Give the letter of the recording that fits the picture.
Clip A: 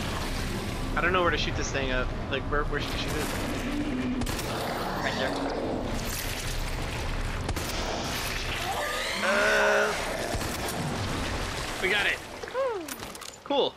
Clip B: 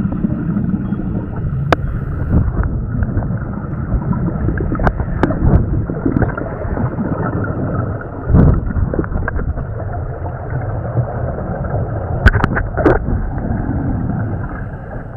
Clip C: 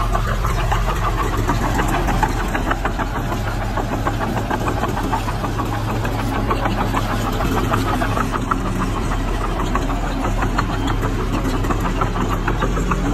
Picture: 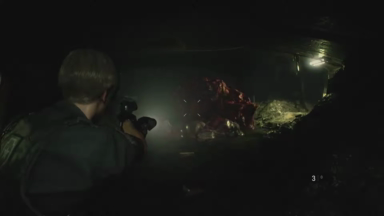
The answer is A